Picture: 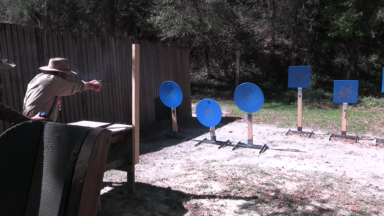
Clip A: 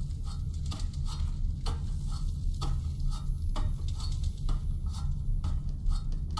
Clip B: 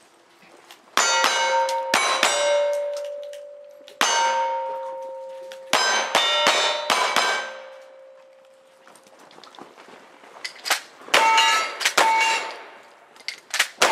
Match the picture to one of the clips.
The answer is B